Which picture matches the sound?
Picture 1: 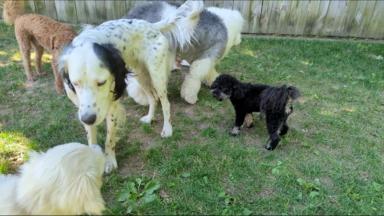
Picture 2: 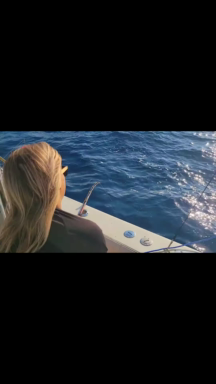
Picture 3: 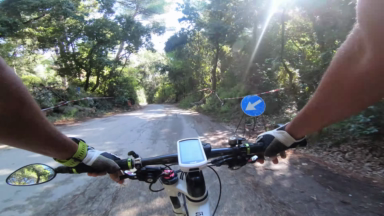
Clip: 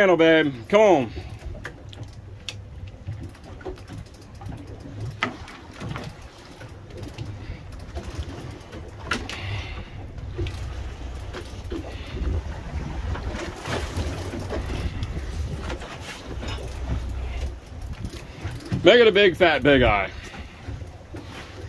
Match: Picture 2